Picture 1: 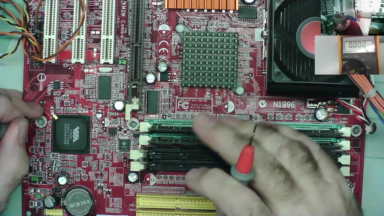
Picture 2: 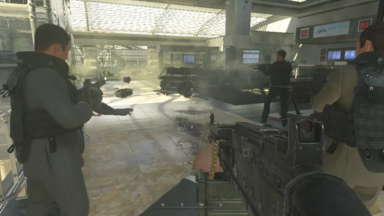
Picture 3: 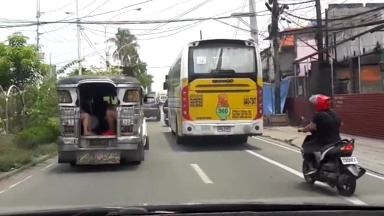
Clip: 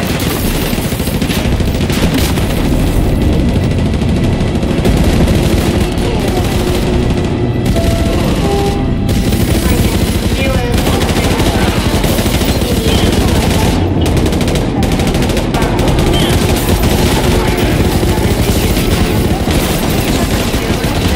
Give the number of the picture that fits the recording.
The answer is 2